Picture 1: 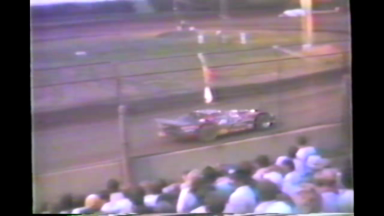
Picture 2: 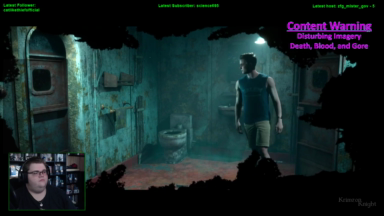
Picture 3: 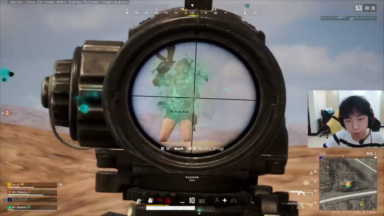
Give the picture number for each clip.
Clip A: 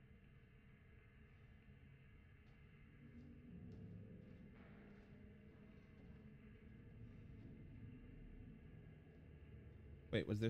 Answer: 2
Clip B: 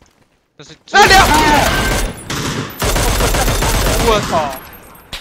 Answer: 3